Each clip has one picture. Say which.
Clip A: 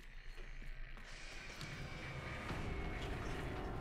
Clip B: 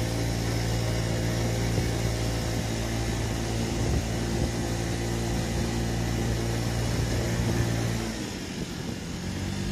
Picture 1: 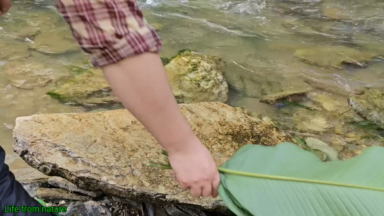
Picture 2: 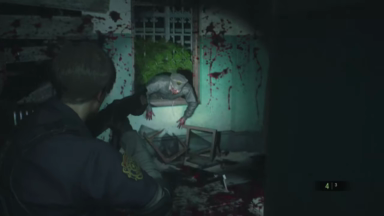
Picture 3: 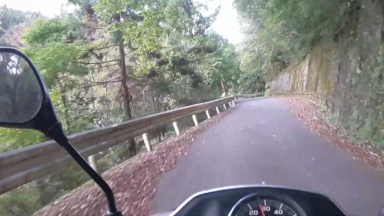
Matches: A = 2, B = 3